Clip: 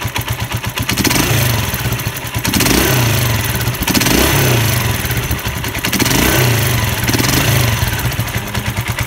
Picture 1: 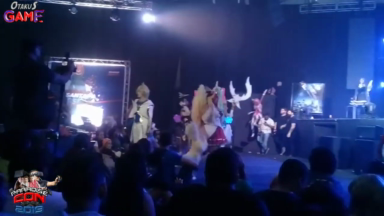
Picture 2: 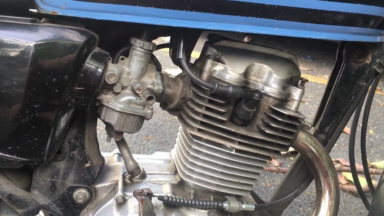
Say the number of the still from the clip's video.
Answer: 2